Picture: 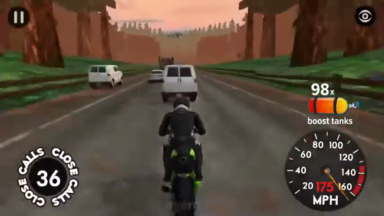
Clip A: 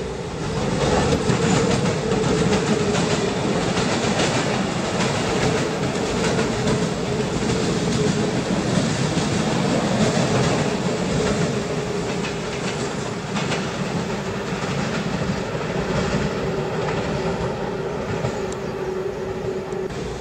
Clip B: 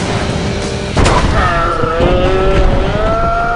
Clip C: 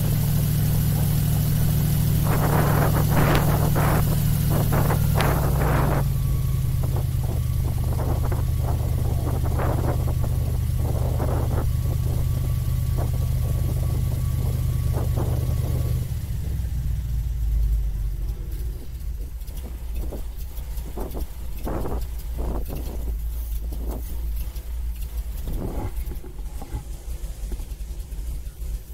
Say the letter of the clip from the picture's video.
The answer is B